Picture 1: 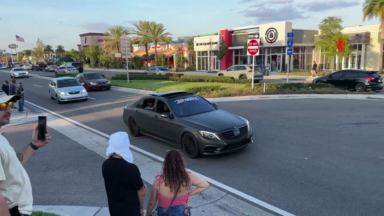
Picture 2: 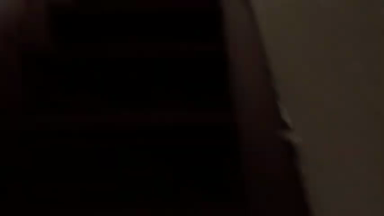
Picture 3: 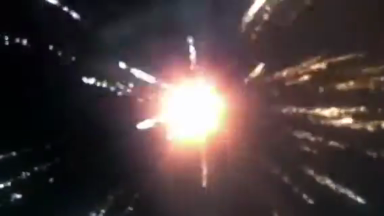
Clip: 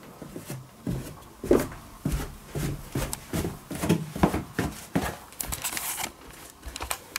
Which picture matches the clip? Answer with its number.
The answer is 2